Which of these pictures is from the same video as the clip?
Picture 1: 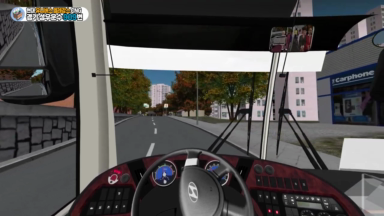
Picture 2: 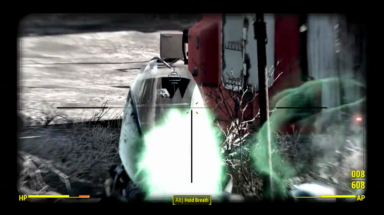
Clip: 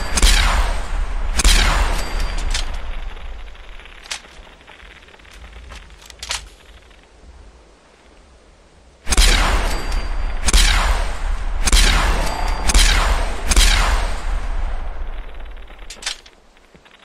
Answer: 2